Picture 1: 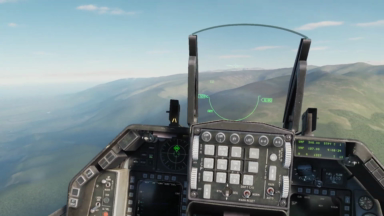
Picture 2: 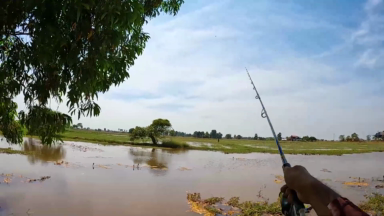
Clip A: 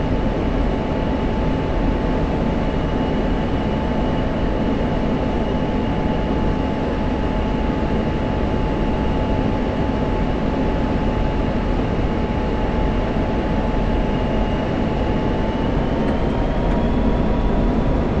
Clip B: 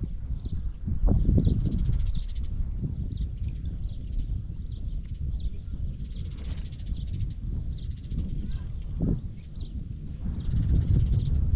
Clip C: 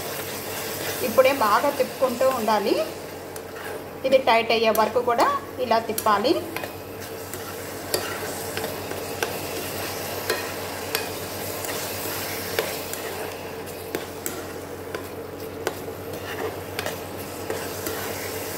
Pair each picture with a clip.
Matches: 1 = A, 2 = B